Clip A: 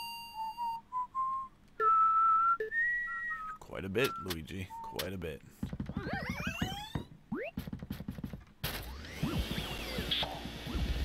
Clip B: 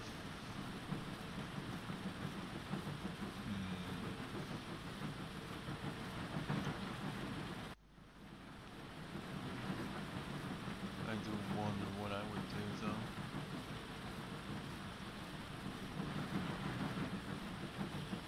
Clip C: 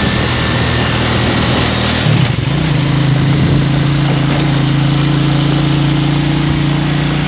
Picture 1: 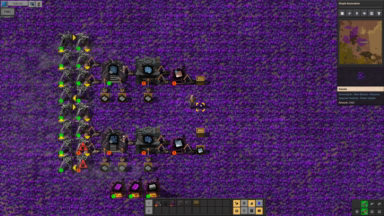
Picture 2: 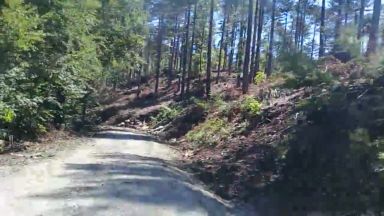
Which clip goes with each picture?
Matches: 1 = B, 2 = C